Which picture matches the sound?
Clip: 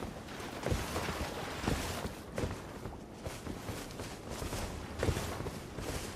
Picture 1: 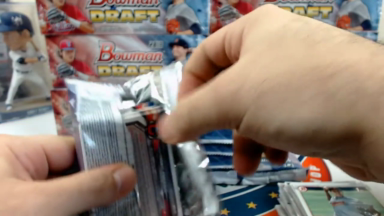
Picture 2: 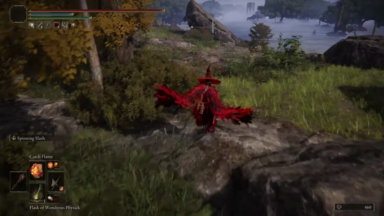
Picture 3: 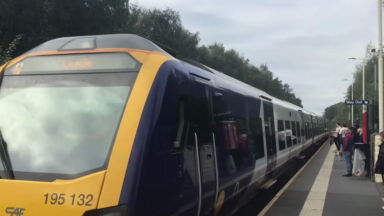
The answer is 2